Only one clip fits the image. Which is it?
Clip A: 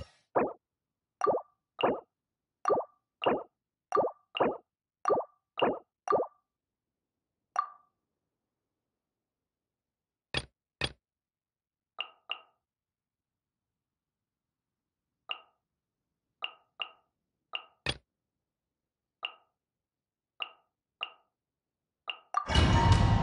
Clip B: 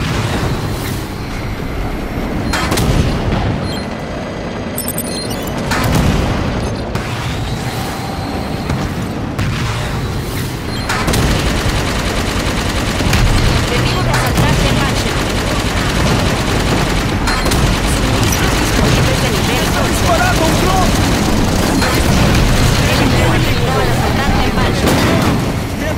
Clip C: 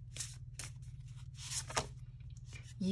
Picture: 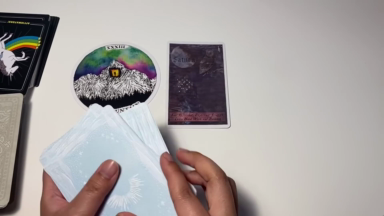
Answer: C